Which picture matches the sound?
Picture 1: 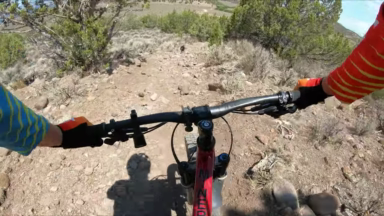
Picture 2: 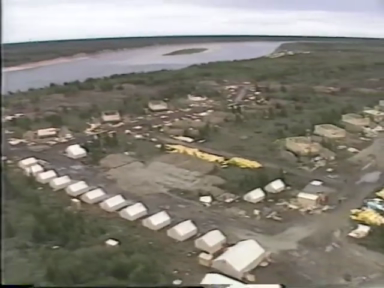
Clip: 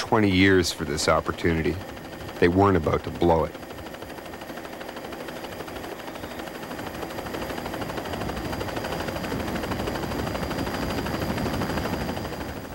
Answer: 2